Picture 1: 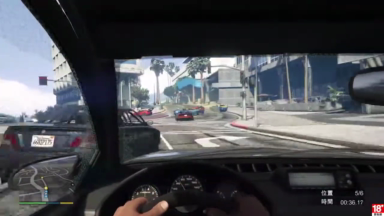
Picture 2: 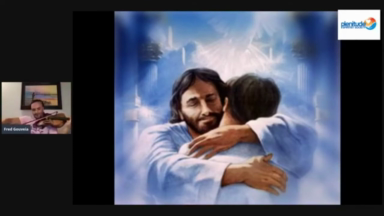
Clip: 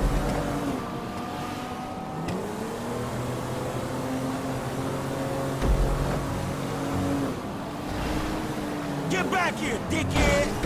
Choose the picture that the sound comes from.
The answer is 1